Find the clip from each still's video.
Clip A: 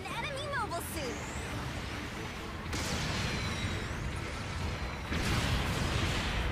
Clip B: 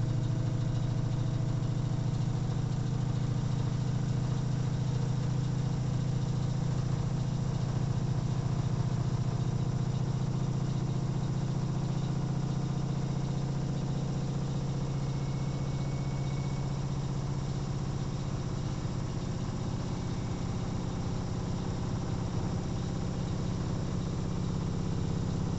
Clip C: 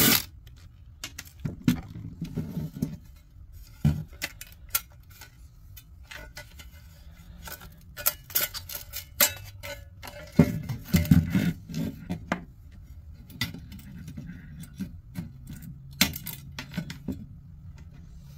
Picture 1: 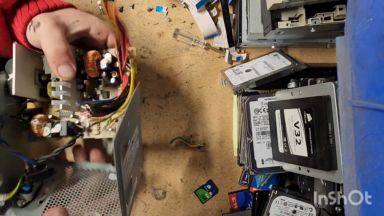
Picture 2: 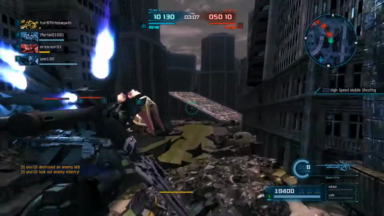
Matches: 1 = C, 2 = A